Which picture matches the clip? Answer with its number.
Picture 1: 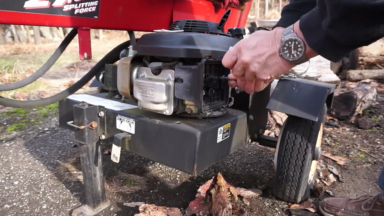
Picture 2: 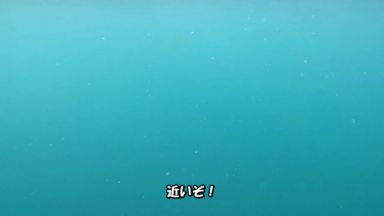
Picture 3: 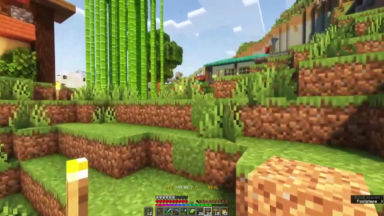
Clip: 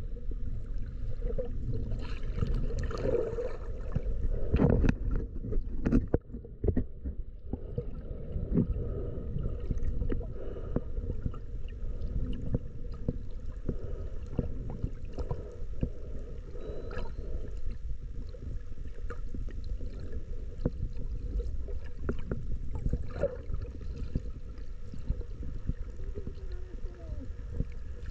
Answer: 2